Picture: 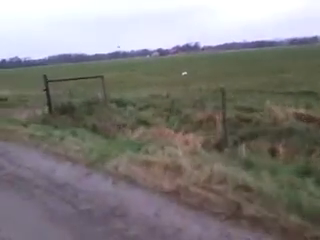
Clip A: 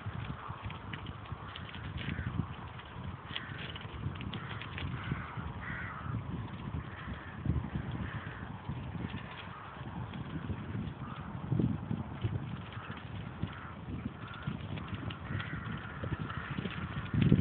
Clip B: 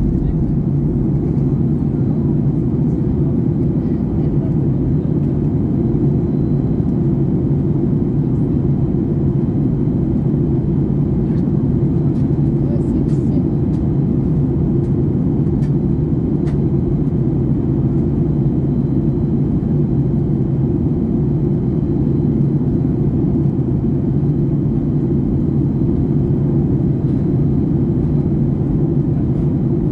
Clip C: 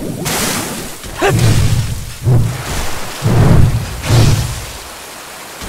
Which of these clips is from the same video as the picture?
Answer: A